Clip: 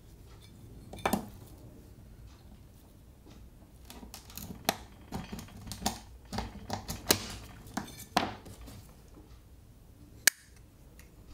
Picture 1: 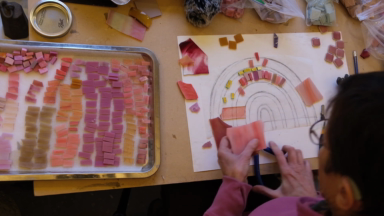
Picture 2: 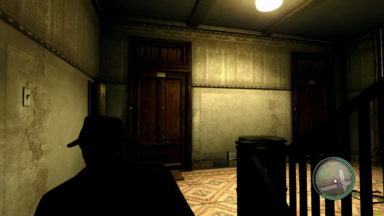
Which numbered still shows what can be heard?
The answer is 1